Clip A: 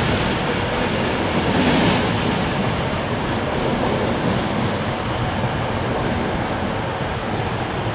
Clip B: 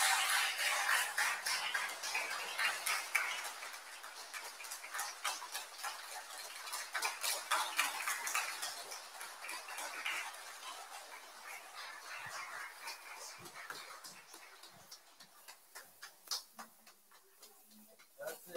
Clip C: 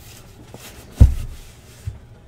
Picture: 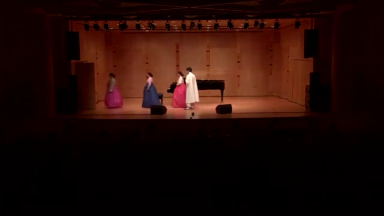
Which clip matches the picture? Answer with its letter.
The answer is B